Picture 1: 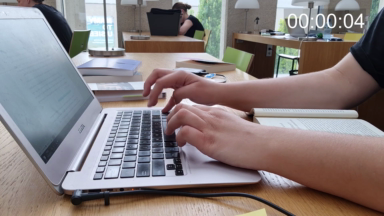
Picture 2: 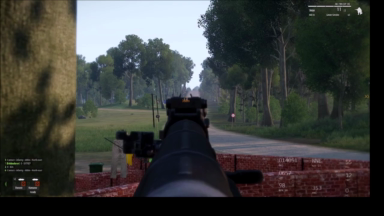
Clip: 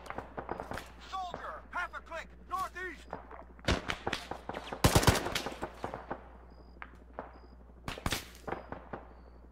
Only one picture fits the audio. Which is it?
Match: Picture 2